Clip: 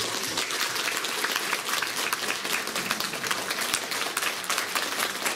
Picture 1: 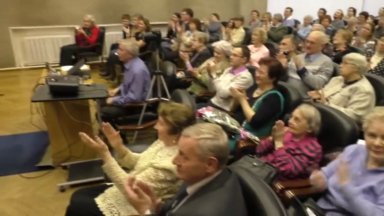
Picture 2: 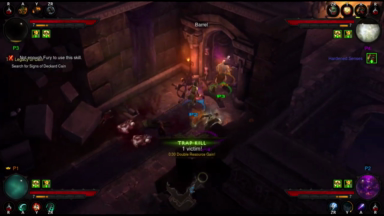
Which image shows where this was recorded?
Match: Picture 1